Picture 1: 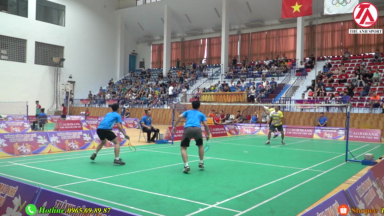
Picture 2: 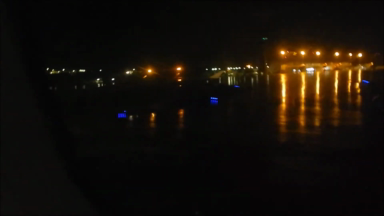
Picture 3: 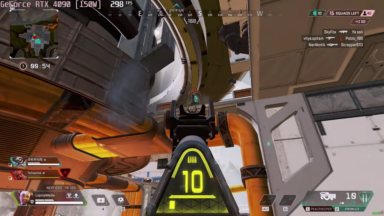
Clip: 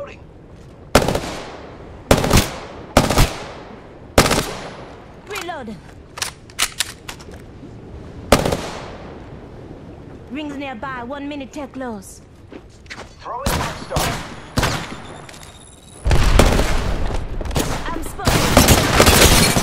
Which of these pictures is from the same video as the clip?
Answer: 3